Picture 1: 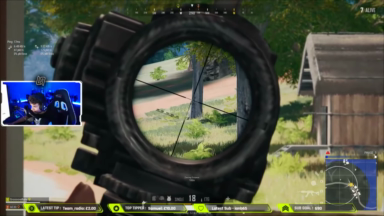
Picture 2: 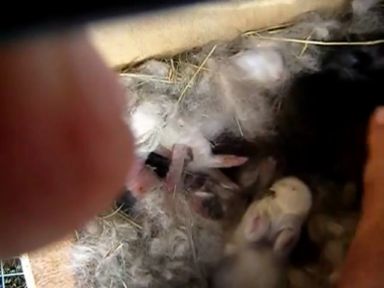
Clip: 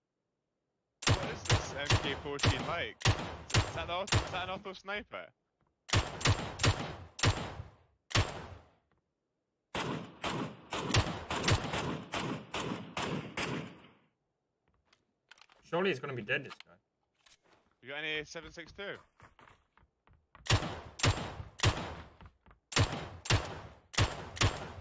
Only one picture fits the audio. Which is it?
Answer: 1